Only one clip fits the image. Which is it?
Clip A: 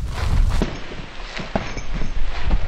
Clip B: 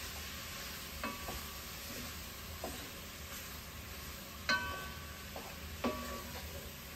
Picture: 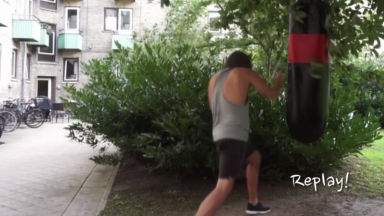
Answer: A